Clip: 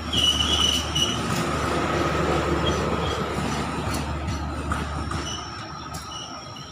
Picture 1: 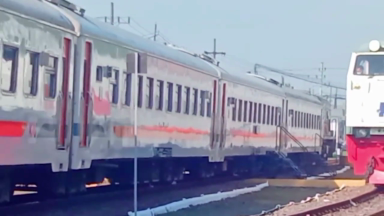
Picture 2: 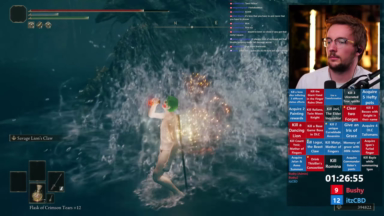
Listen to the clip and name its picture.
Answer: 1